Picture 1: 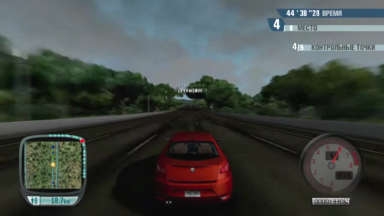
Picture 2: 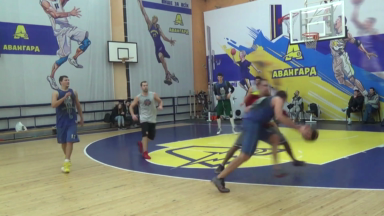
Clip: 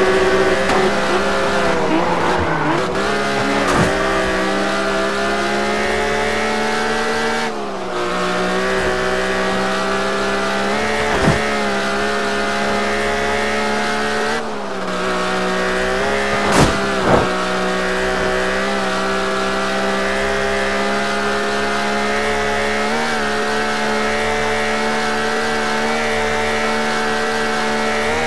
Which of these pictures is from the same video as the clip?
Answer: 1